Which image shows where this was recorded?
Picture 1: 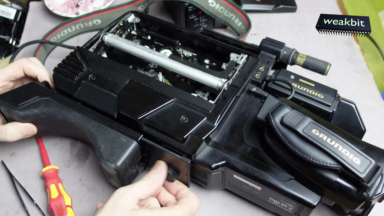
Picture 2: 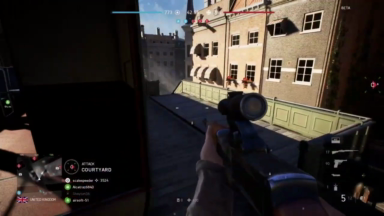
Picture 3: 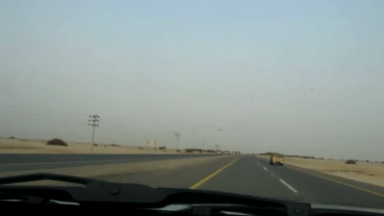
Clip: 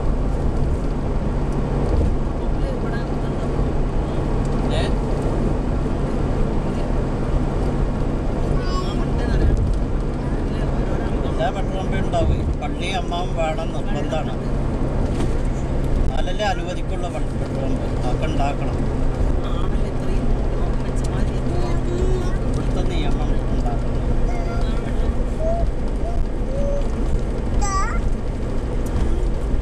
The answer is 3